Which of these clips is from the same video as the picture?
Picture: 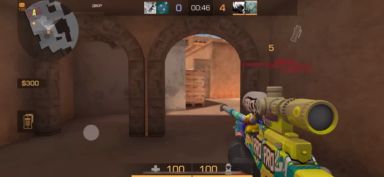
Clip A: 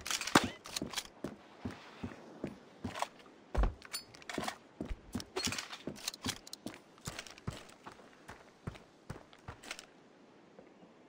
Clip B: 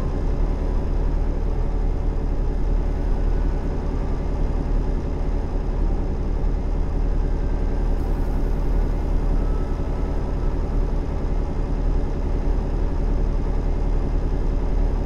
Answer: A